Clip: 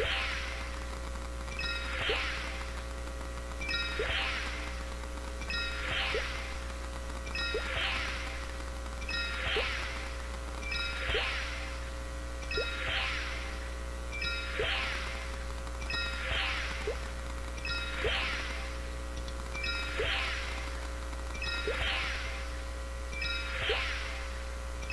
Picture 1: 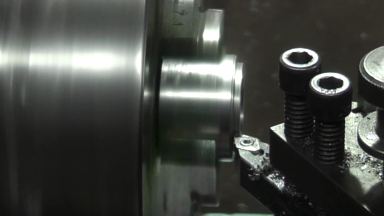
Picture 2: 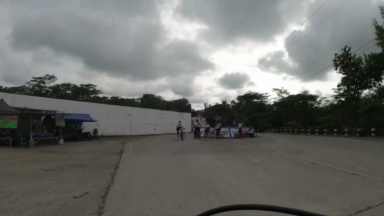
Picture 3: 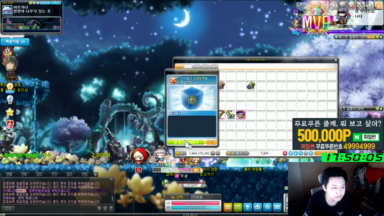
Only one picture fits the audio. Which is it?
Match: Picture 3